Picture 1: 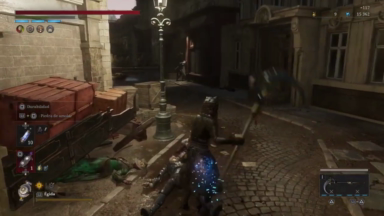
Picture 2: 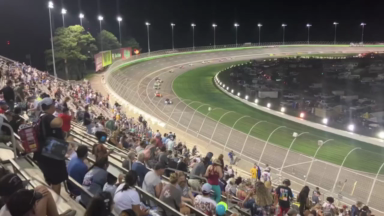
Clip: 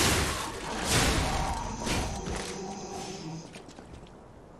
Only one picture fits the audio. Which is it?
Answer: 1